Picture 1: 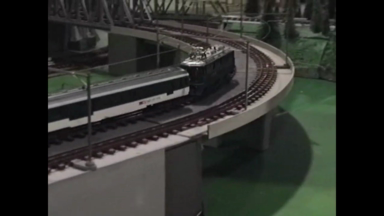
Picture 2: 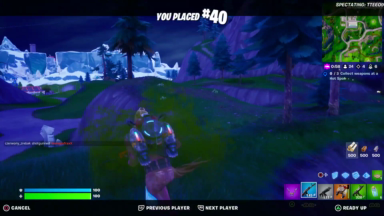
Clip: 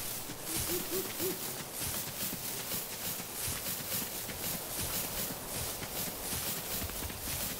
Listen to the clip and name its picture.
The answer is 2